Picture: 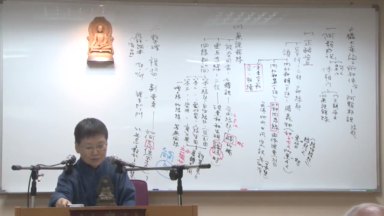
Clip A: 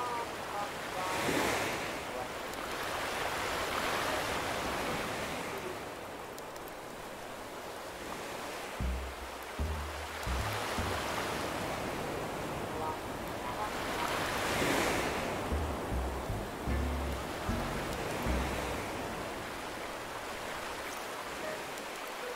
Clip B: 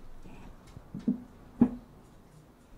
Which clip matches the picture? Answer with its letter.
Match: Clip B